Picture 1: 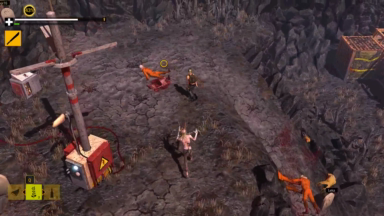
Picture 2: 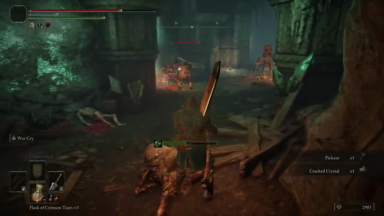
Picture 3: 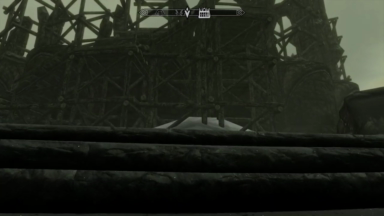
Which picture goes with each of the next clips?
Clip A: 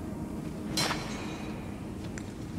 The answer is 2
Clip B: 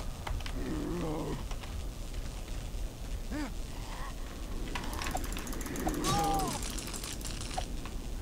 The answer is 1